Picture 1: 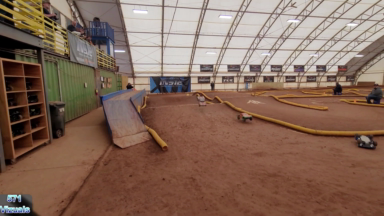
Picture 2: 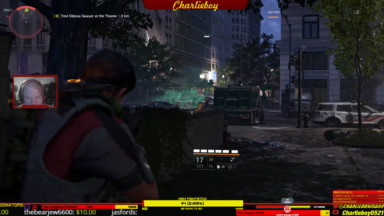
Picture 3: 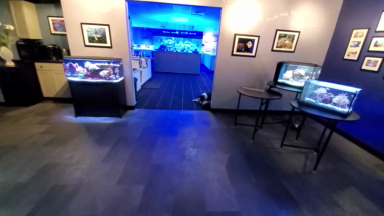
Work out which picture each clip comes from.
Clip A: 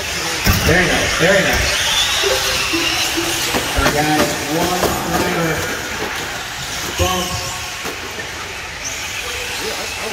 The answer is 1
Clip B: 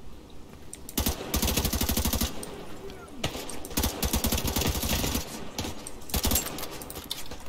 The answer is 2